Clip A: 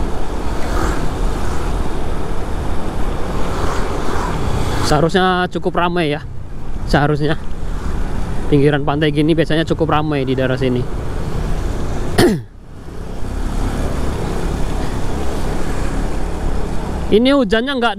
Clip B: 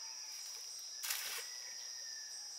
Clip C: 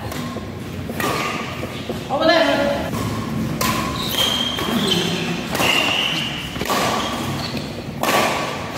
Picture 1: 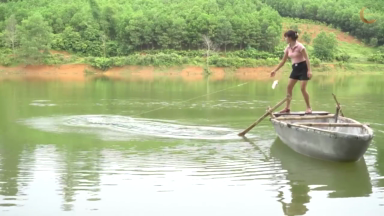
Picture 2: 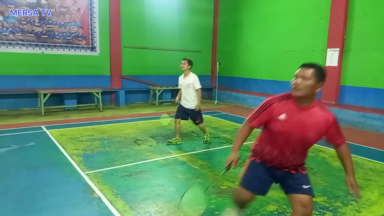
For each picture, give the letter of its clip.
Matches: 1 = B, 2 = C